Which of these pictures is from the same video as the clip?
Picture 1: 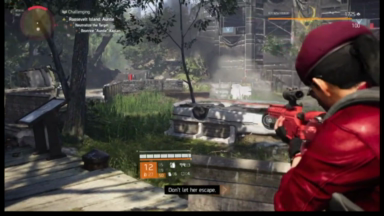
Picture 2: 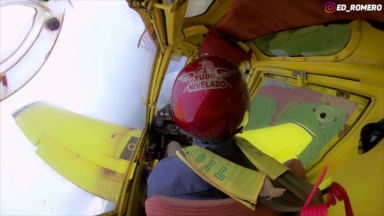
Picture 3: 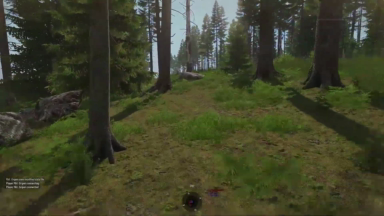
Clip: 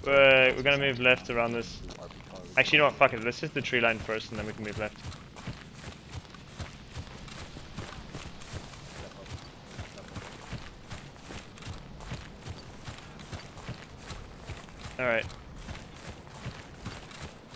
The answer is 3